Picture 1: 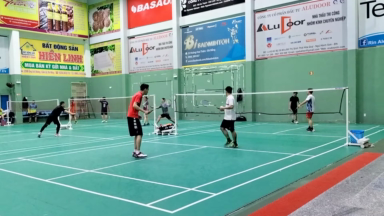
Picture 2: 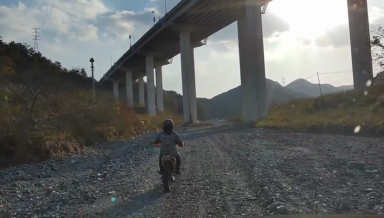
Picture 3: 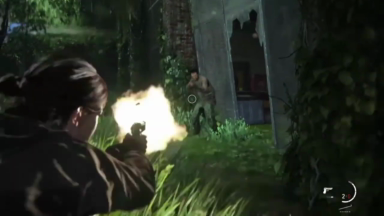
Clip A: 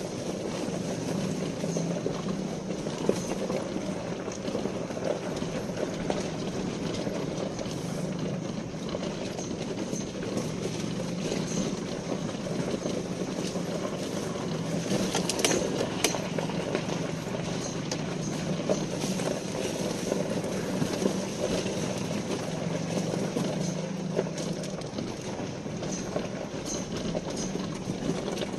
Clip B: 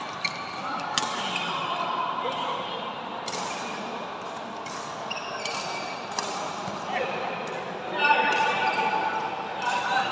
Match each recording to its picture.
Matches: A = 2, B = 1